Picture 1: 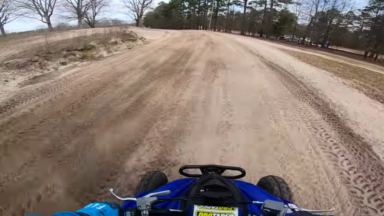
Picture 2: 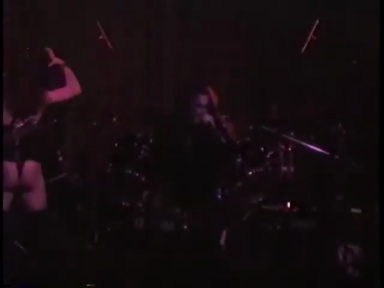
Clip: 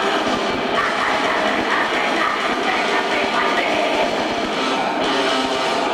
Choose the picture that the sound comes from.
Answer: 2